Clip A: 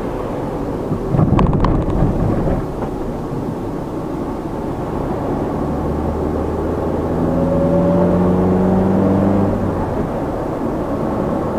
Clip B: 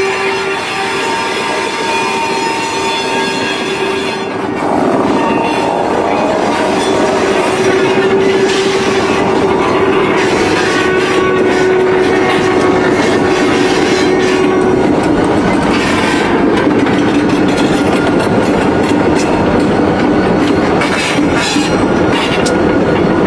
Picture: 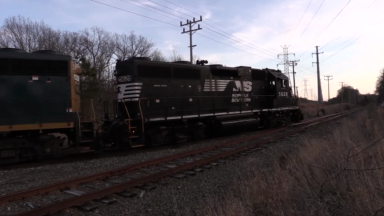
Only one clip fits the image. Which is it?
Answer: B